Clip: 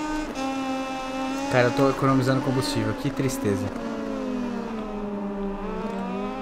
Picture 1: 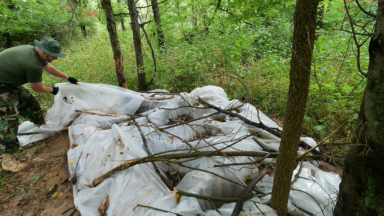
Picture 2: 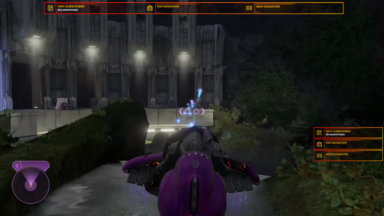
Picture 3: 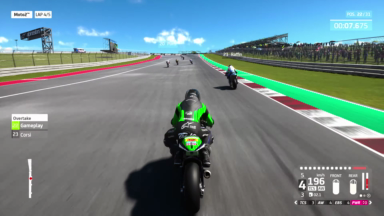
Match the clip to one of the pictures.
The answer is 3